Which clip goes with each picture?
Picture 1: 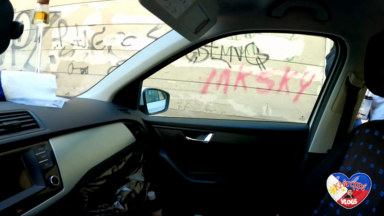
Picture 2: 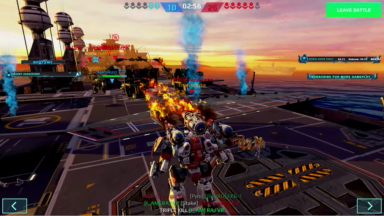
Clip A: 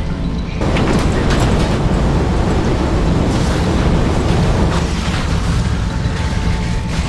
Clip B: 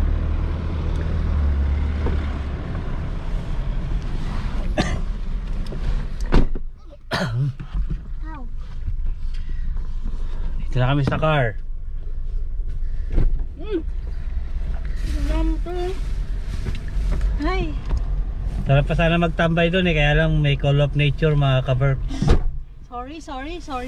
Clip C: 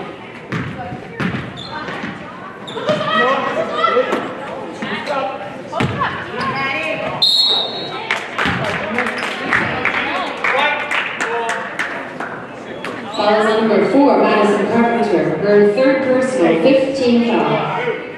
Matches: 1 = B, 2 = A